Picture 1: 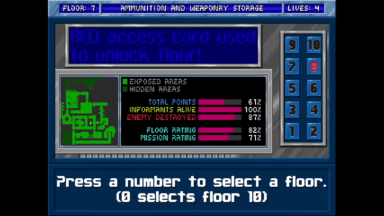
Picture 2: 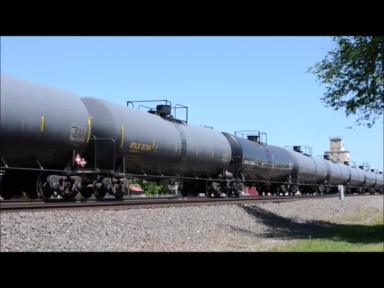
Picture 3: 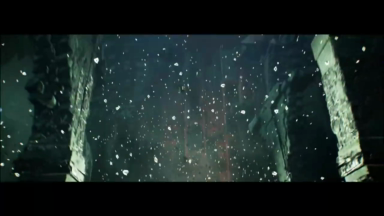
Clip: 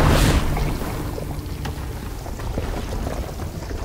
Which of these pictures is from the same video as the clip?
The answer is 3